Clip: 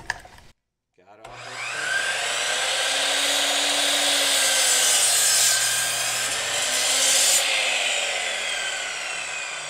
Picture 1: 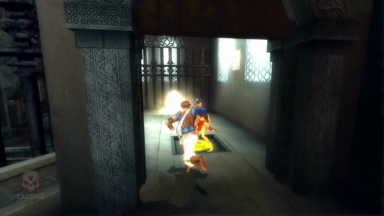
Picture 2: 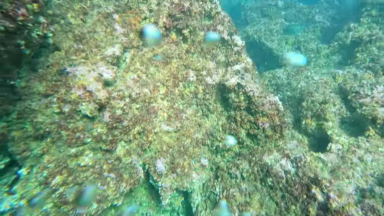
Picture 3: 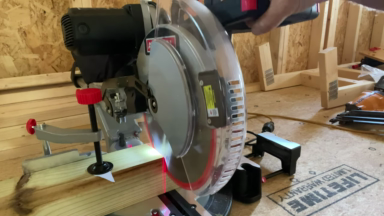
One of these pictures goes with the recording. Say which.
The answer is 3